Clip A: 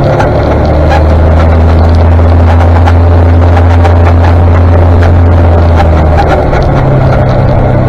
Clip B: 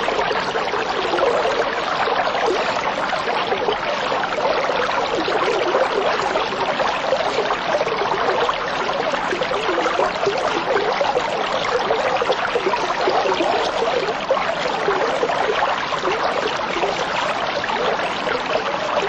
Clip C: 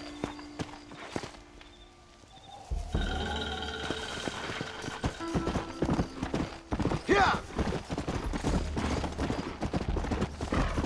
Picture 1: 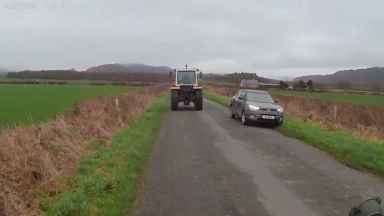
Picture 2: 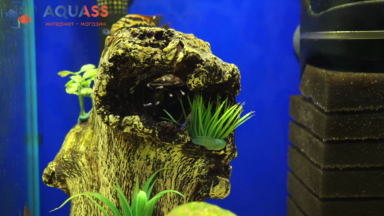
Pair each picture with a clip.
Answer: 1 A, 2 B